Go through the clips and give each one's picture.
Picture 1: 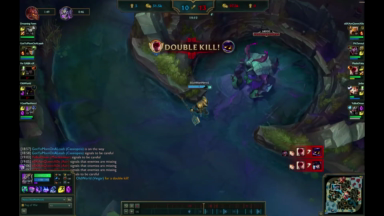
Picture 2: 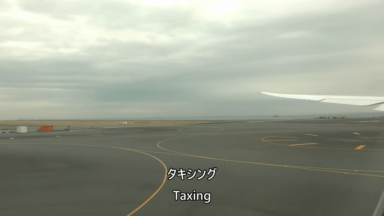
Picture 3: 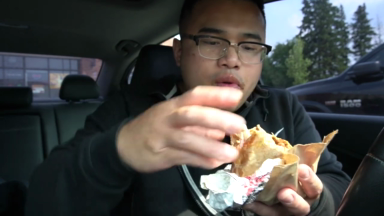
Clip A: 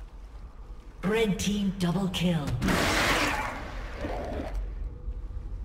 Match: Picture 1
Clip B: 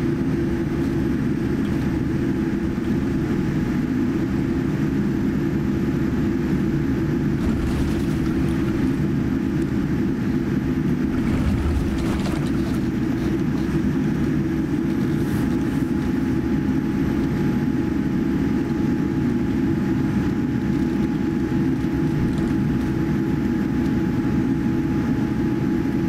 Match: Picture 2